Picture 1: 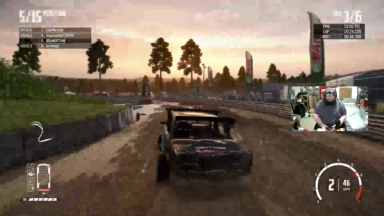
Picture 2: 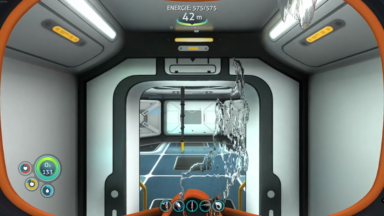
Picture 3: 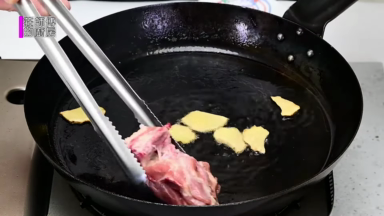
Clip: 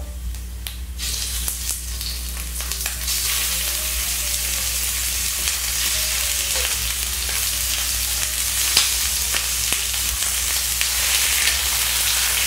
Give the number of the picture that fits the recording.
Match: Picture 3